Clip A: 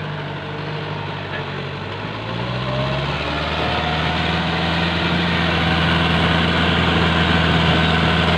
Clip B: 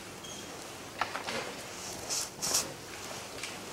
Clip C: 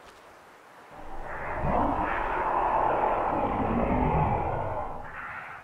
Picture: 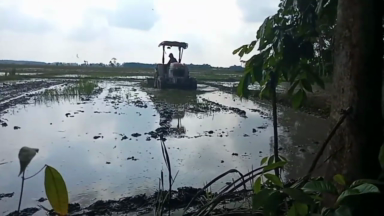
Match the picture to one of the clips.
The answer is A